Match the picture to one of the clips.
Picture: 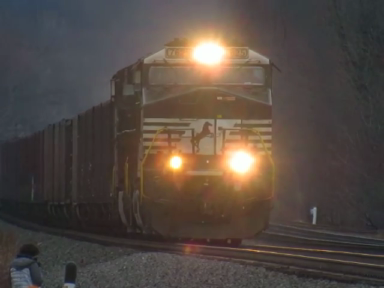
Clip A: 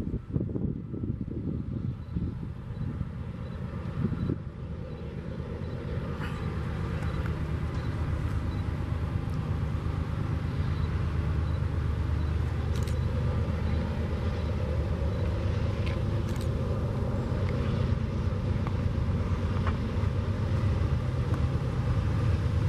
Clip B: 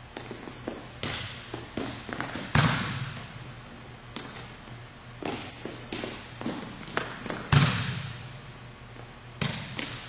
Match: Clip A